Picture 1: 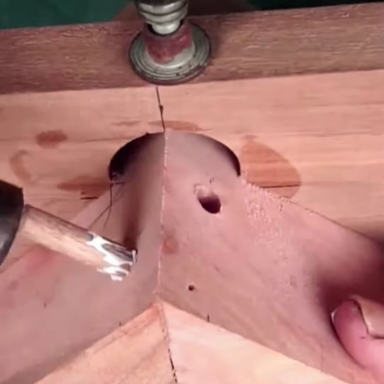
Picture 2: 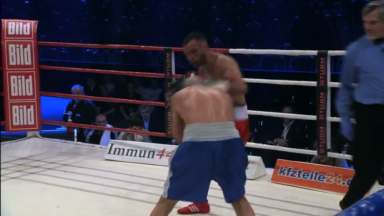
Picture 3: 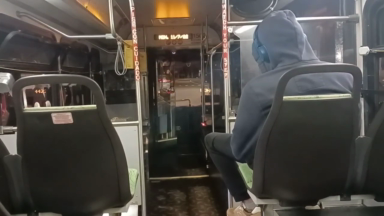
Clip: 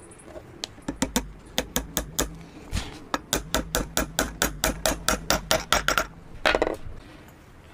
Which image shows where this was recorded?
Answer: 1